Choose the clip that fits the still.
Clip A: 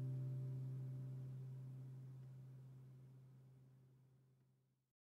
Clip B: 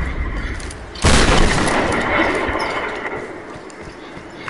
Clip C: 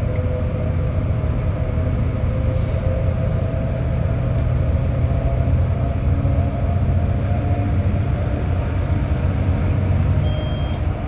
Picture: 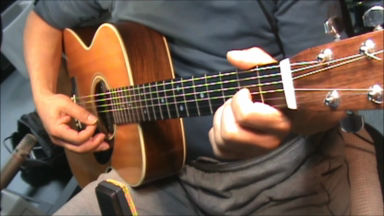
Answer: A